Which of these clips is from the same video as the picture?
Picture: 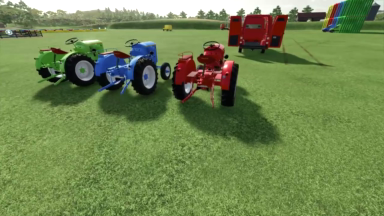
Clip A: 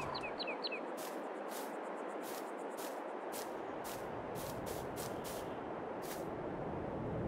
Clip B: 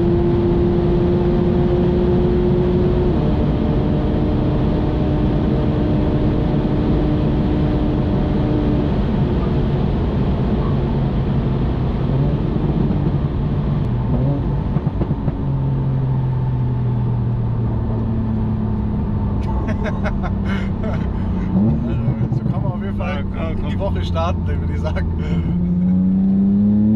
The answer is A